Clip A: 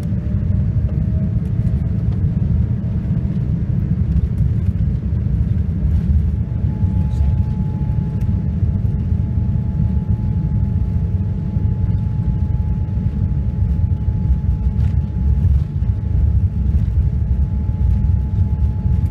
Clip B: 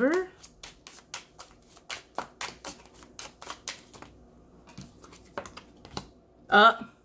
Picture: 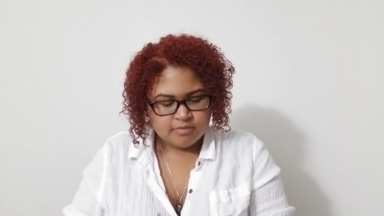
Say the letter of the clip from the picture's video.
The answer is B